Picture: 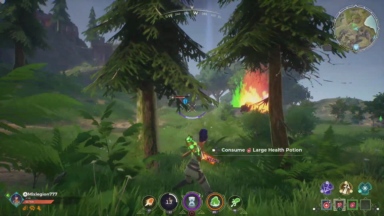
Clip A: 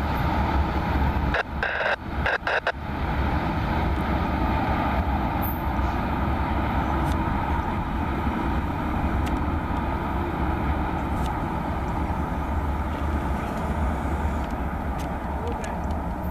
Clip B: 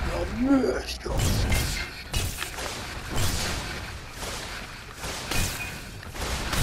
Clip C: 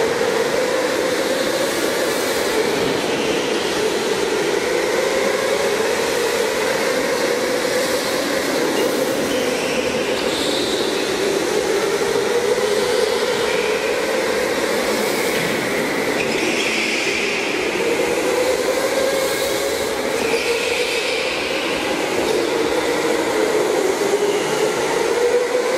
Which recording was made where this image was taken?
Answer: B